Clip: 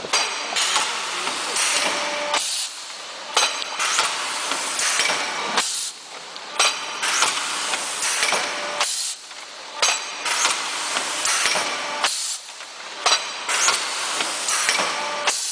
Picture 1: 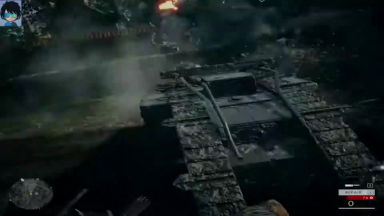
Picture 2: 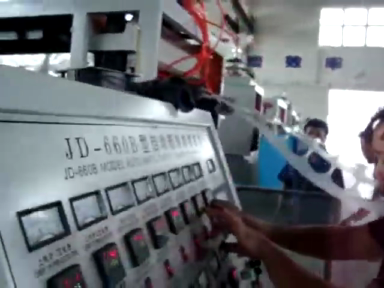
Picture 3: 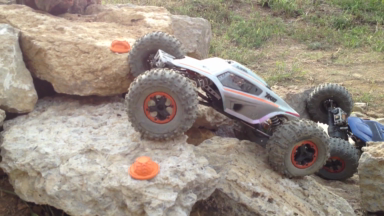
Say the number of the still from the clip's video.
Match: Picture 2